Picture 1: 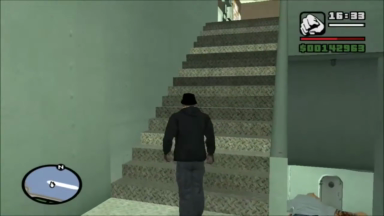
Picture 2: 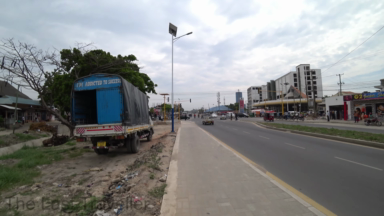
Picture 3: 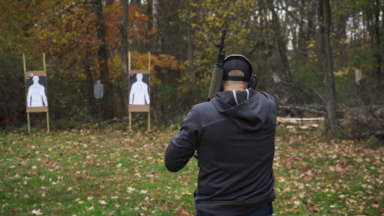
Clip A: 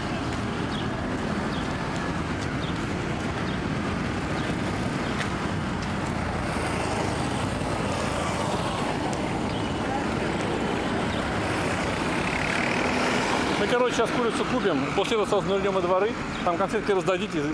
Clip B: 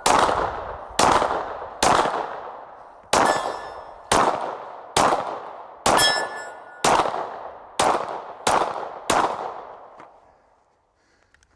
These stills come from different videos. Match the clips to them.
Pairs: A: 2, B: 3